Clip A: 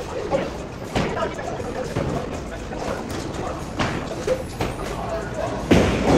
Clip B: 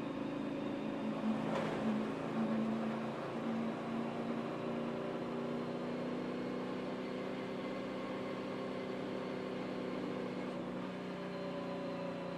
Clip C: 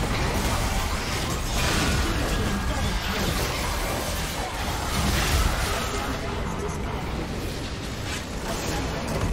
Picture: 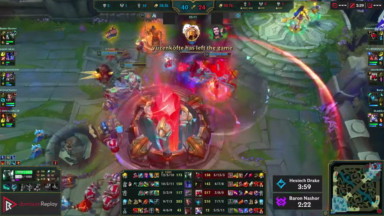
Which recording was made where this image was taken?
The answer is C